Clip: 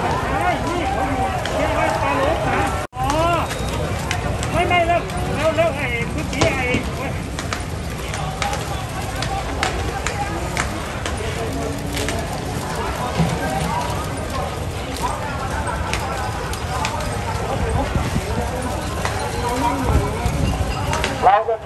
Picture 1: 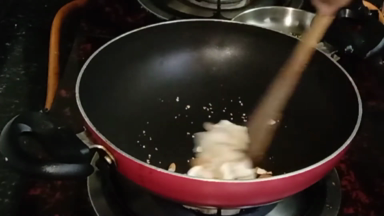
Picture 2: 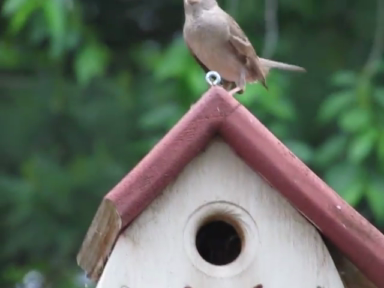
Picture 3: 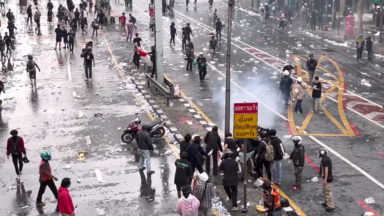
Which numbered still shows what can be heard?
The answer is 3